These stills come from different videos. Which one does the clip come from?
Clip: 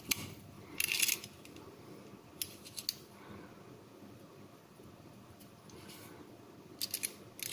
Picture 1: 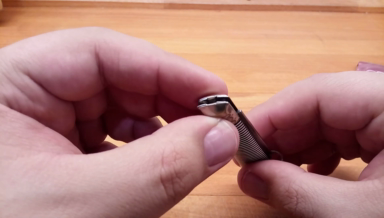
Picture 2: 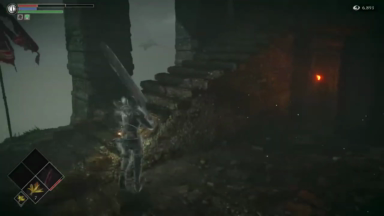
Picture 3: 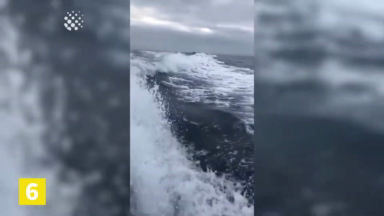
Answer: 1